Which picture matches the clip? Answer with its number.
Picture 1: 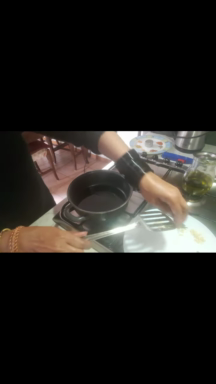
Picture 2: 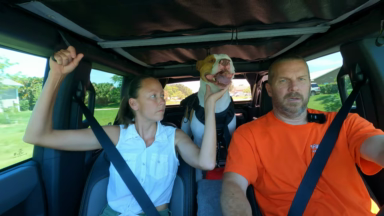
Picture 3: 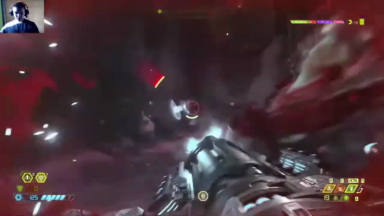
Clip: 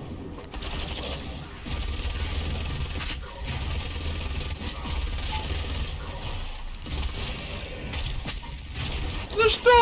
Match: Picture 3